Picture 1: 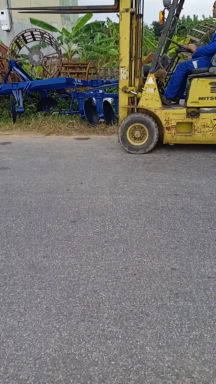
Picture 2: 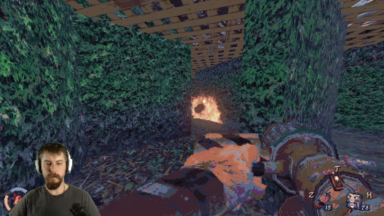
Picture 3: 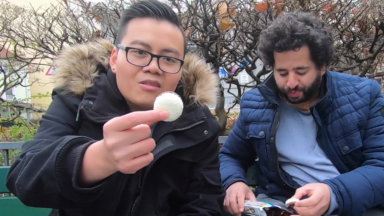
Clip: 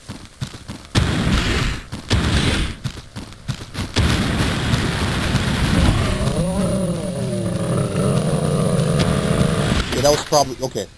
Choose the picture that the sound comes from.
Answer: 2